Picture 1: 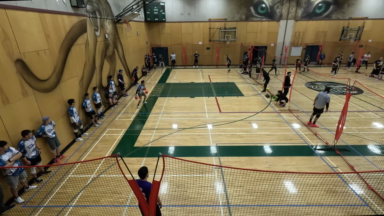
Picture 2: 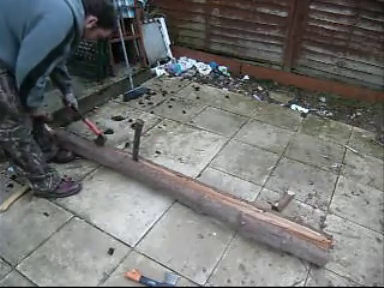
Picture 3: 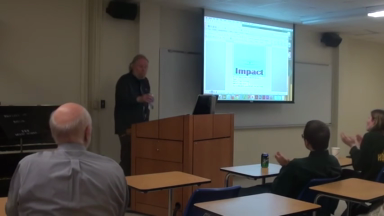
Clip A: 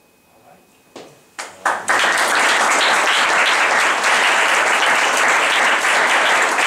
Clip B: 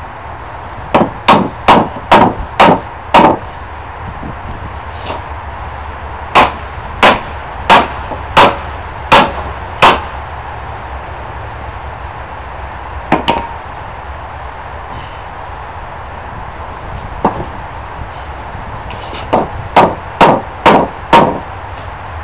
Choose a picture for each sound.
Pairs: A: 3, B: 2